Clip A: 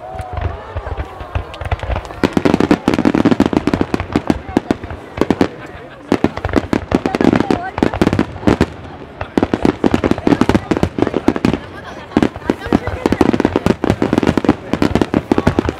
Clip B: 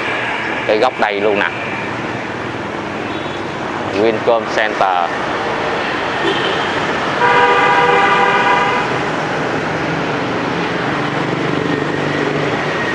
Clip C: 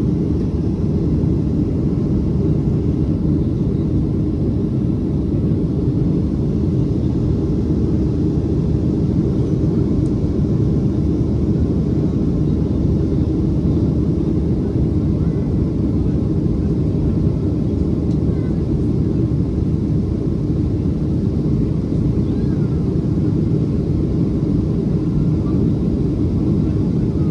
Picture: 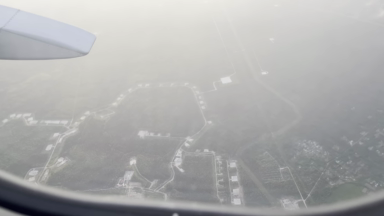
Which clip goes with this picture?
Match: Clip C